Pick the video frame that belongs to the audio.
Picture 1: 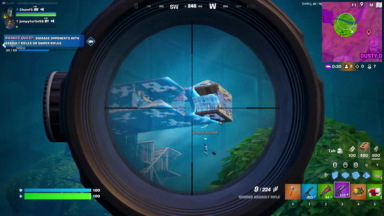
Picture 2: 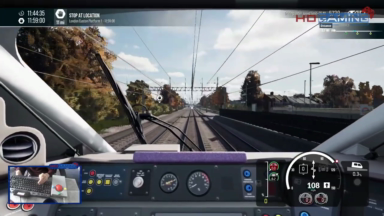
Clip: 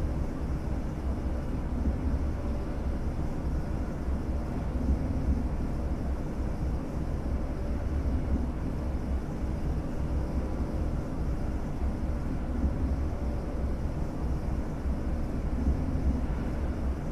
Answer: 2